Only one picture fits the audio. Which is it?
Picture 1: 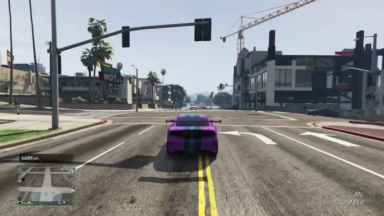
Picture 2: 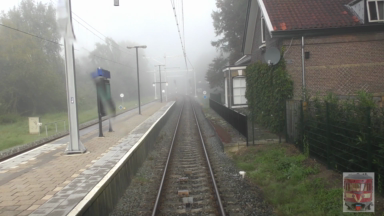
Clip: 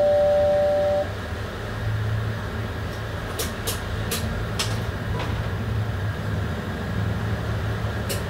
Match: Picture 2